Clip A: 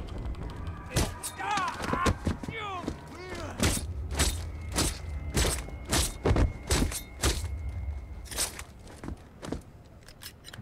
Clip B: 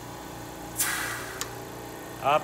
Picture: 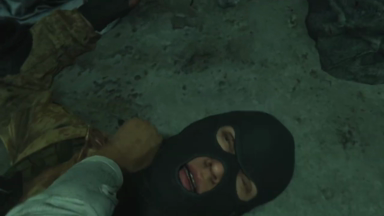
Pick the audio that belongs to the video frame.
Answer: A